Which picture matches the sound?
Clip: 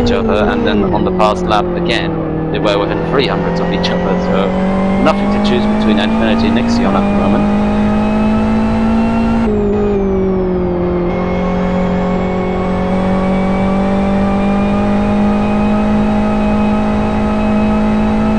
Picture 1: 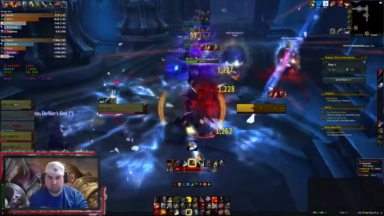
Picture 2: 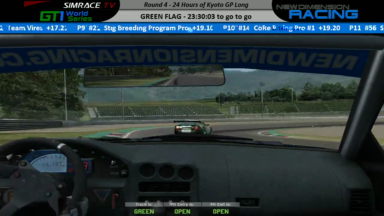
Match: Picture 2